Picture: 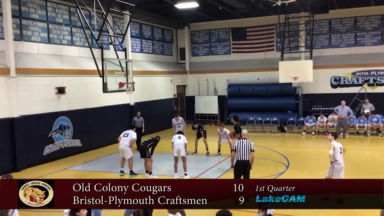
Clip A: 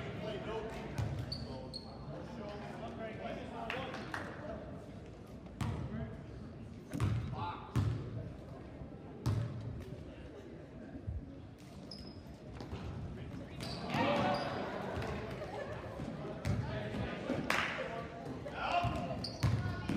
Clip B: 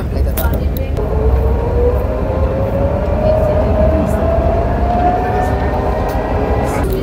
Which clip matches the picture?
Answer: A